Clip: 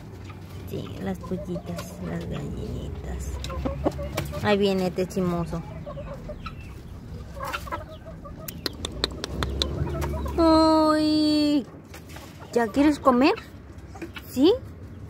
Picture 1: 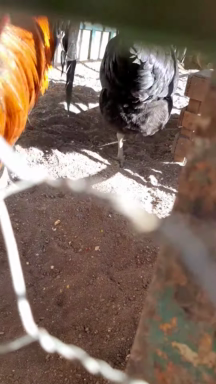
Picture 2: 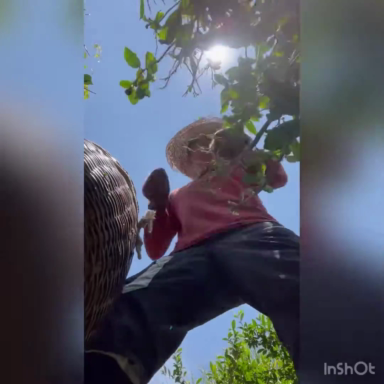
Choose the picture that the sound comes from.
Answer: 1